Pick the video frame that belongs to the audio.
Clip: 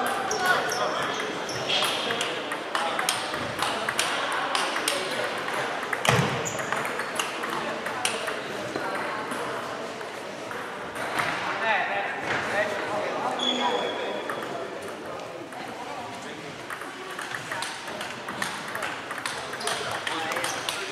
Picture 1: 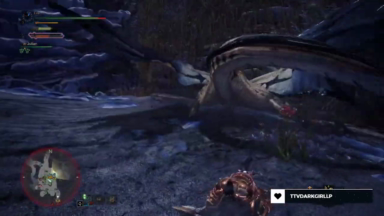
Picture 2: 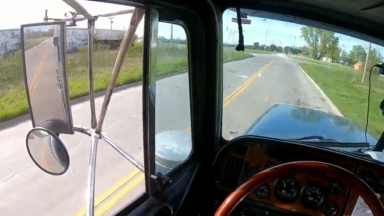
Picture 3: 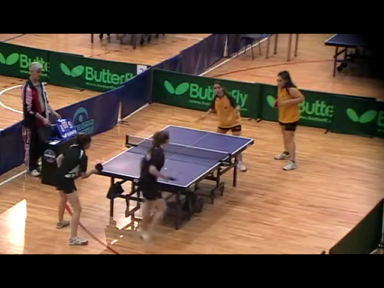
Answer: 3